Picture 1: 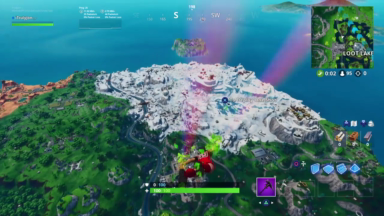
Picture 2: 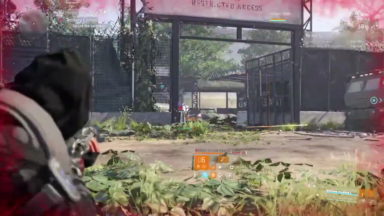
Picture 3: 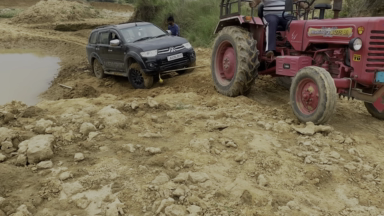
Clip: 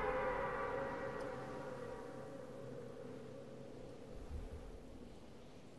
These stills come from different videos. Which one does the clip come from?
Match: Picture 1